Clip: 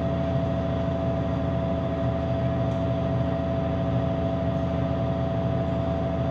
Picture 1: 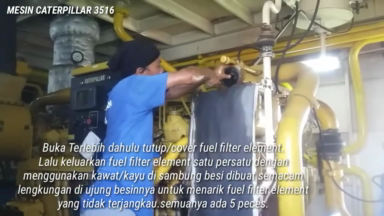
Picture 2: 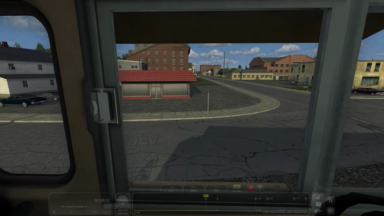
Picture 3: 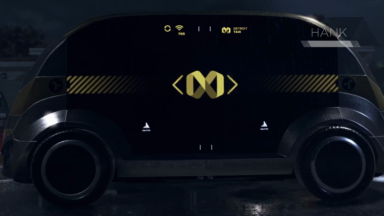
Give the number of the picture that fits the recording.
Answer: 1